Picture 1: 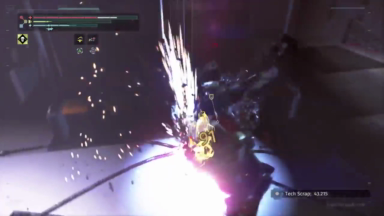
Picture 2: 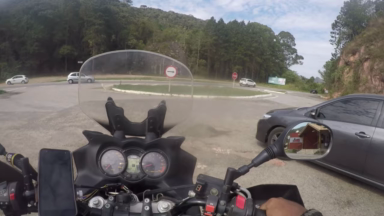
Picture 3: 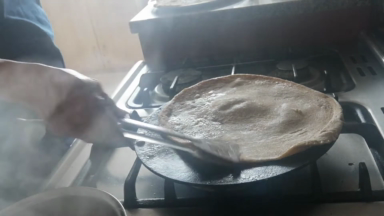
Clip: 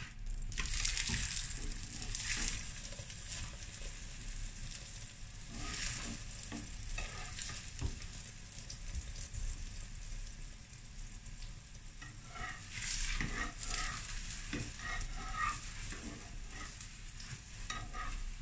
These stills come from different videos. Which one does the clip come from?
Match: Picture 3